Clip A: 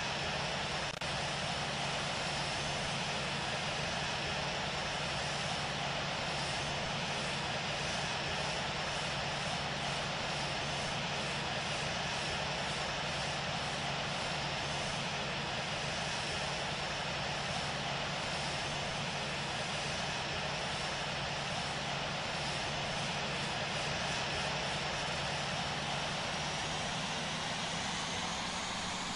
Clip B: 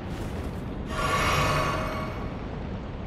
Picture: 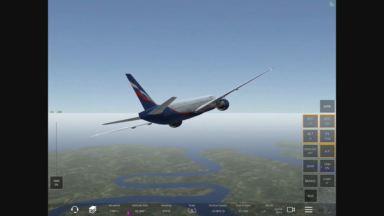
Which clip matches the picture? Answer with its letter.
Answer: A